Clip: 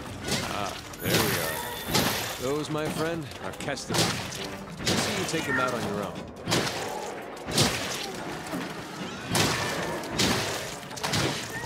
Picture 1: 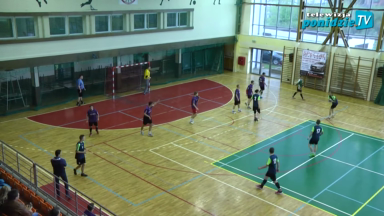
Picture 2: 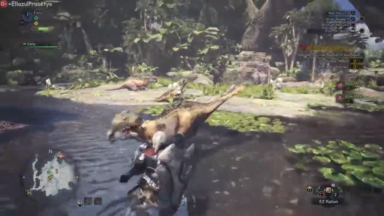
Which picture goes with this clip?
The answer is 2